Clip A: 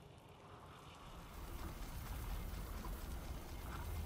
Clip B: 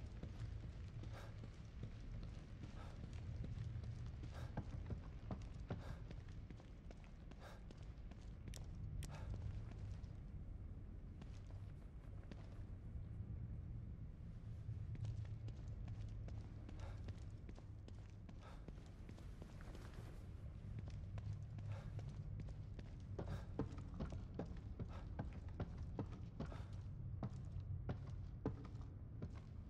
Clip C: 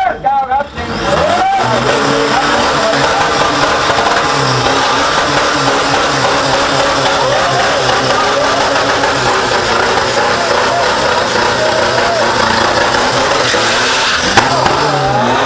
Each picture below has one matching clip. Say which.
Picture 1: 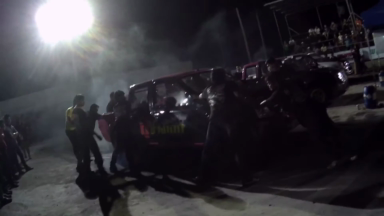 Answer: C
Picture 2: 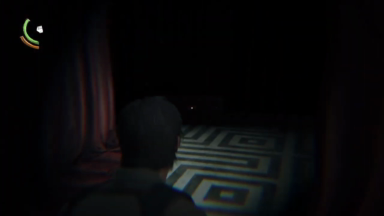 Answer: B